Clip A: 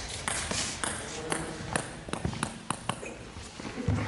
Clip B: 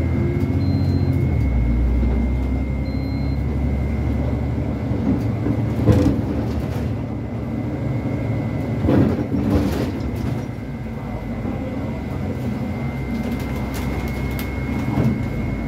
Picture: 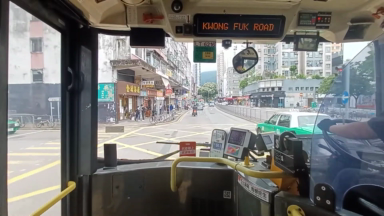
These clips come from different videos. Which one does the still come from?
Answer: B